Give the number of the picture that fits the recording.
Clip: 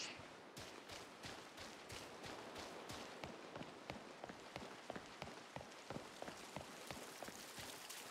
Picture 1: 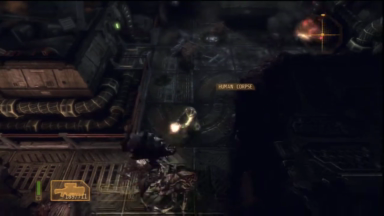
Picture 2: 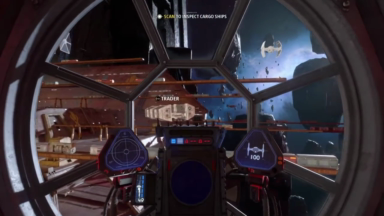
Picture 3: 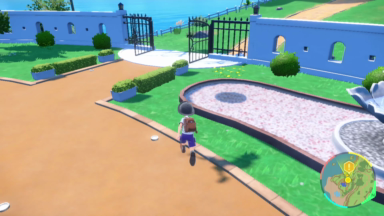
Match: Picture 3